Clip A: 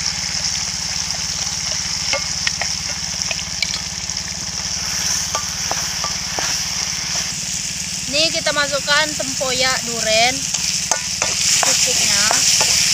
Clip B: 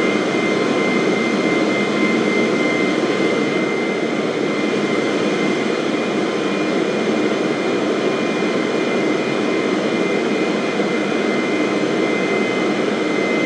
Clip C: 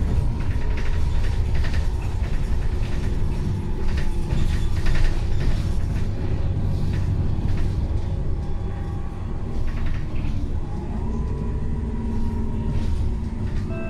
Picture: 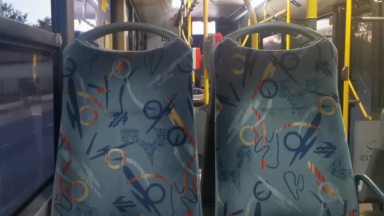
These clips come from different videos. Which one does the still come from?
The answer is C